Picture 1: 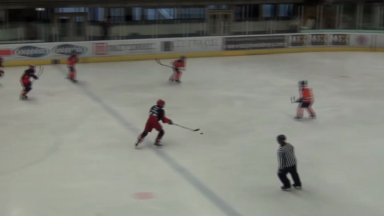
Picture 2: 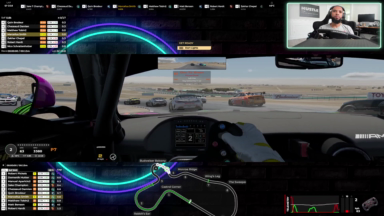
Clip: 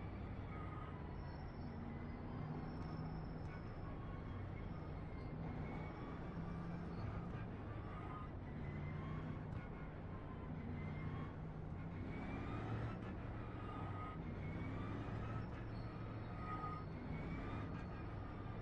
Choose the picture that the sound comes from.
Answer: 2